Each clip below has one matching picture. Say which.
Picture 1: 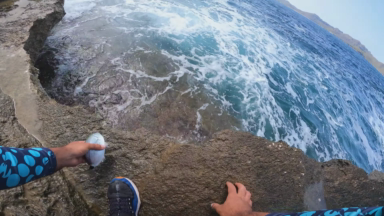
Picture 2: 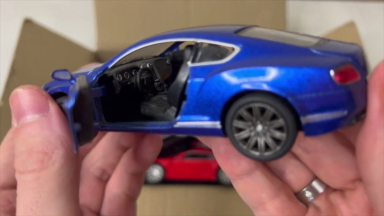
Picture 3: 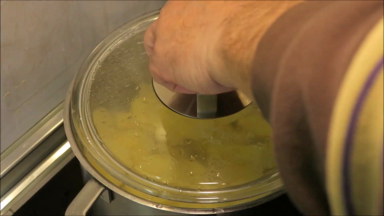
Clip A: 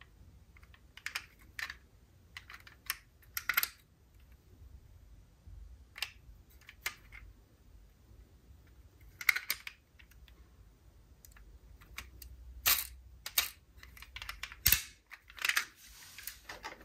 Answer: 2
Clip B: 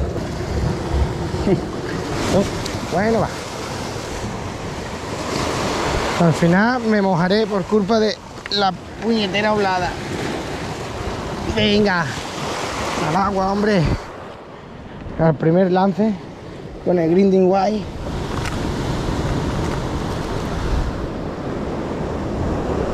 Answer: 1